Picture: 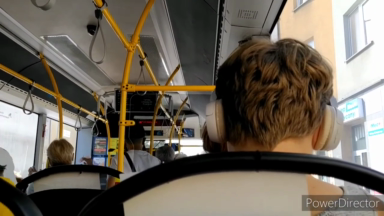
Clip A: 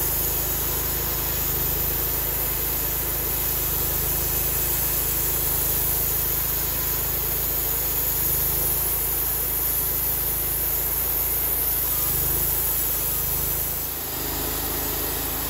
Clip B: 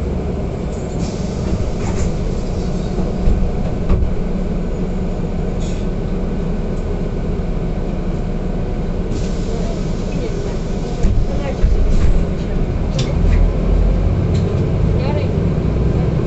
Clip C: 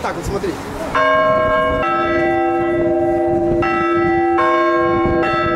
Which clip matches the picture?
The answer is B